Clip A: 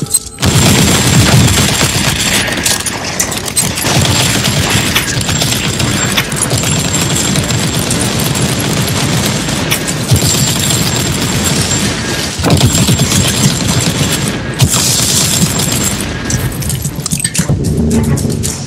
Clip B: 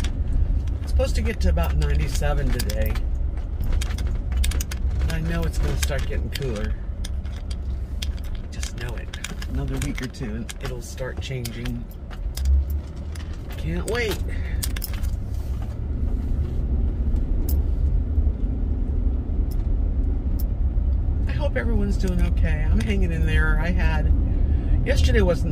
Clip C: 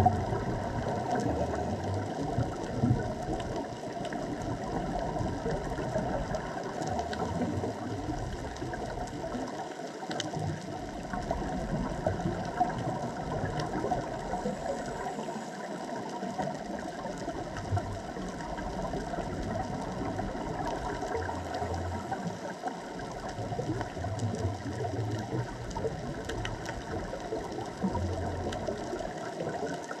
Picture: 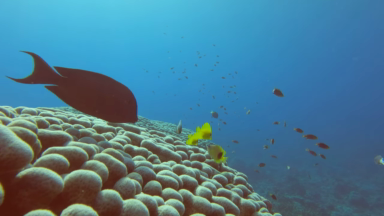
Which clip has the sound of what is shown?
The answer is C